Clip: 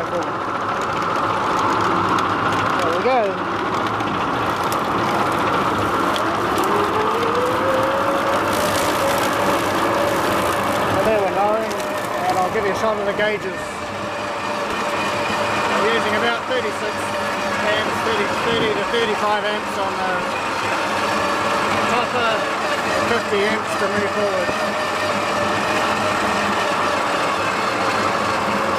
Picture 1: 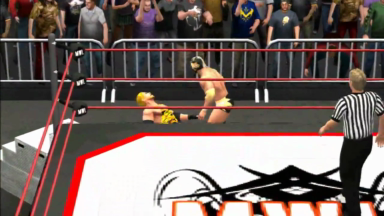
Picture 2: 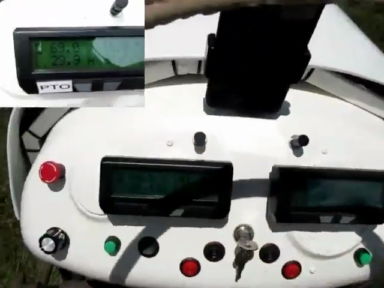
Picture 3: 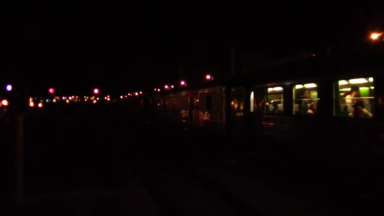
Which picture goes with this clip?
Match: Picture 2